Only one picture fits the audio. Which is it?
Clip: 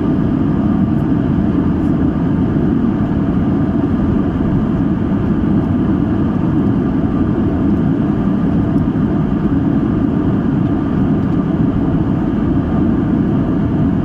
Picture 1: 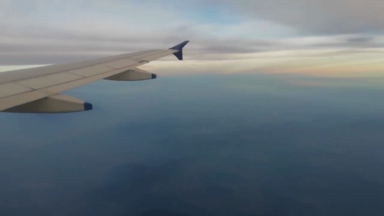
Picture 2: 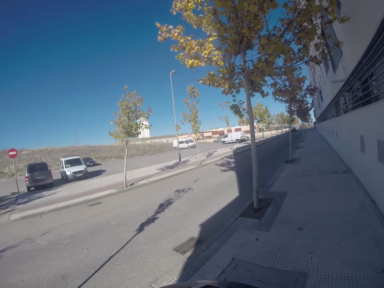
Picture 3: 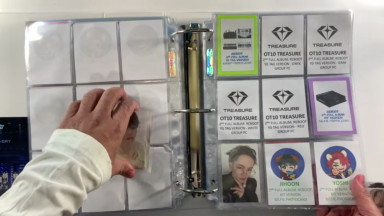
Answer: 1